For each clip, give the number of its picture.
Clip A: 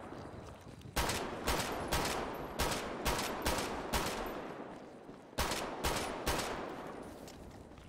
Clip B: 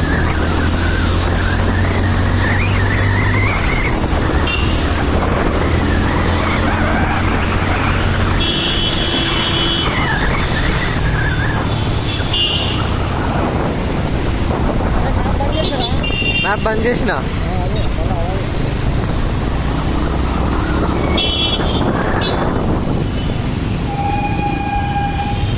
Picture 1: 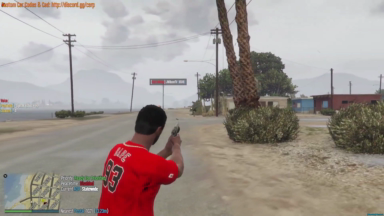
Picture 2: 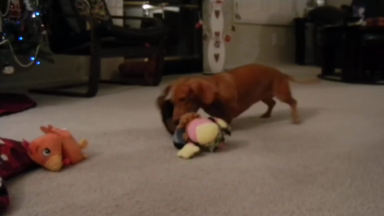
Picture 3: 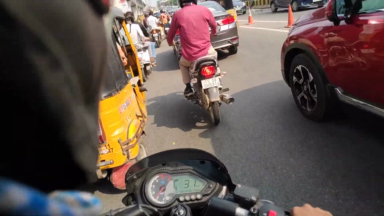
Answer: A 1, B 3